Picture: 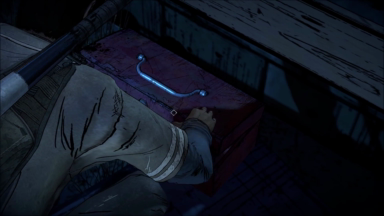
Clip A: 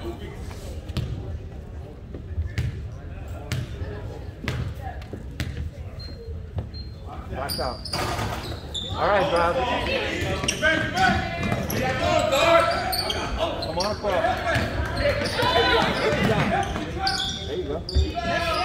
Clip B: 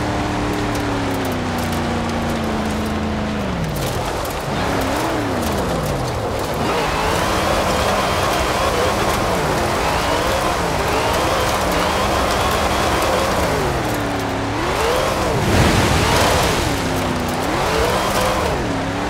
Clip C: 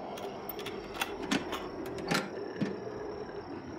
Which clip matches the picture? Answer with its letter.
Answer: C